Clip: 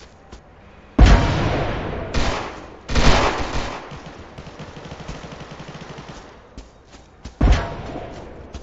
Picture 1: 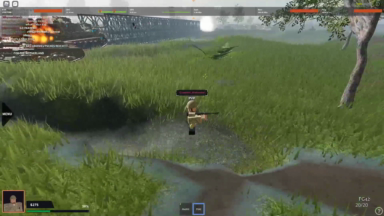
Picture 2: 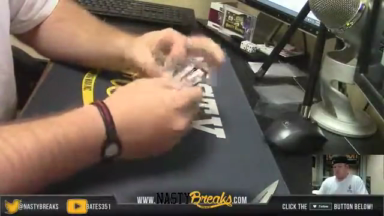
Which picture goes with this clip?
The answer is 1